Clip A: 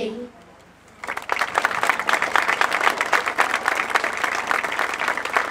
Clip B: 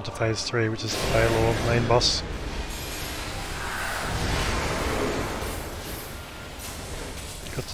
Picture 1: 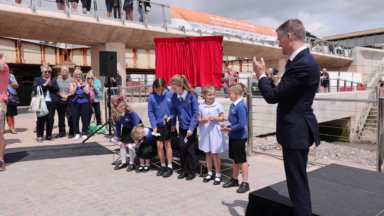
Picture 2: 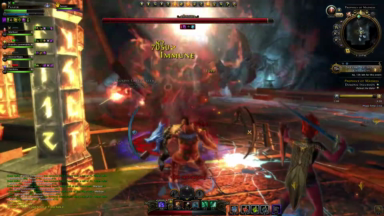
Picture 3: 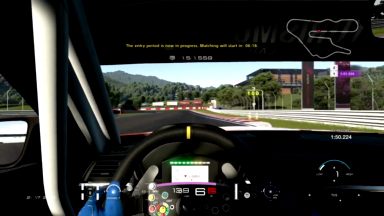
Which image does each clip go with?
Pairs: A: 1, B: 2